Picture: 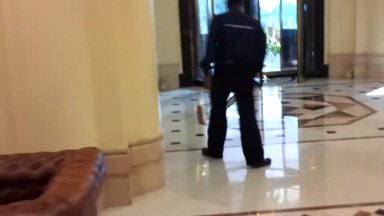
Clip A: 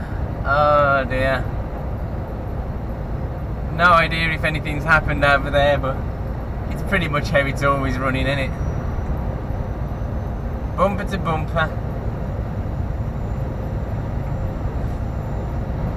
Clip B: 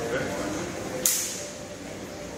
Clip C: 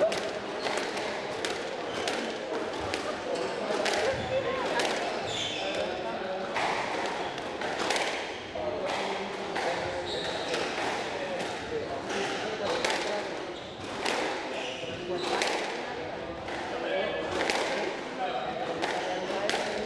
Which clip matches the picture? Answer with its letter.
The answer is B